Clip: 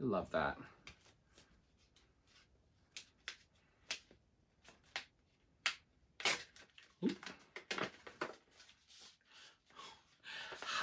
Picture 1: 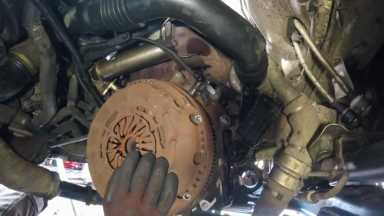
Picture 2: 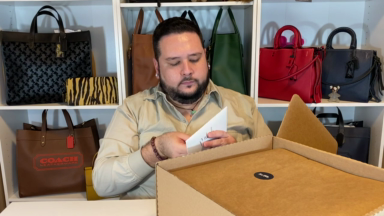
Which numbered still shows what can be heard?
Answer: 2